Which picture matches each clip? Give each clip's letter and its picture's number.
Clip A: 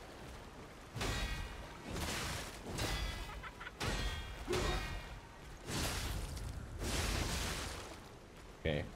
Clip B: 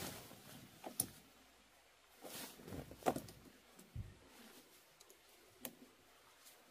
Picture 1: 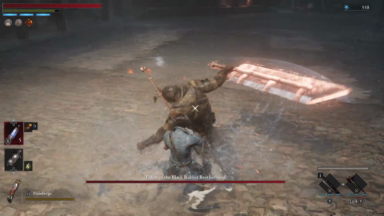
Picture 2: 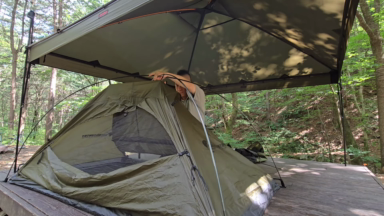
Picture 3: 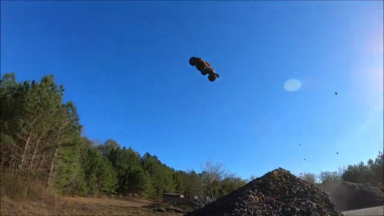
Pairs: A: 1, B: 2